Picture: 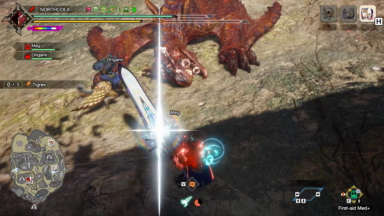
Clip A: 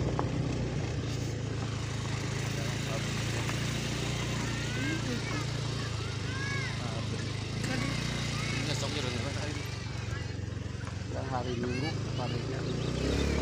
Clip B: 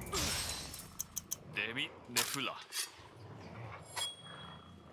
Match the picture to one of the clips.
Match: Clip B